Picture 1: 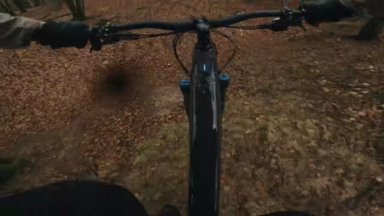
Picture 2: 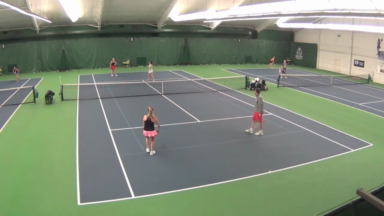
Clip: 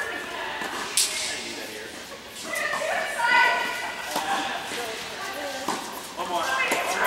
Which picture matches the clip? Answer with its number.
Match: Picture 2